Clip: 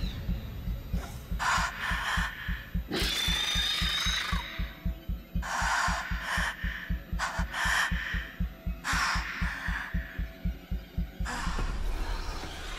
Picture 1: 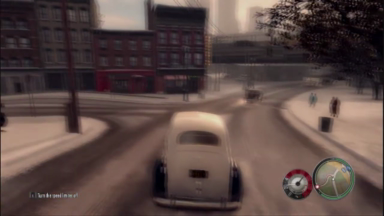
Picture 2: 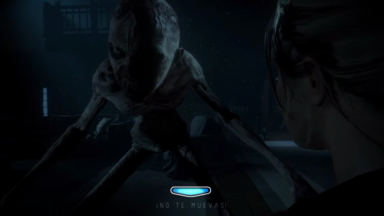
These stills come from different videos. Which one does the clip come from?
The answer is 2